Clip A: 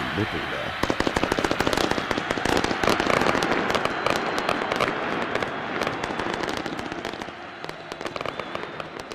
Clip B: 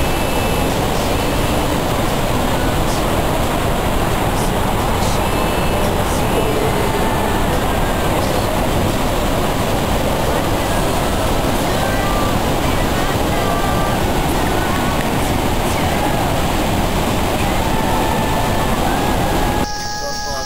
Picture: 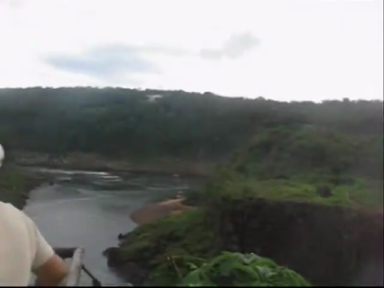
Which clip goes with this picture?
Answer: B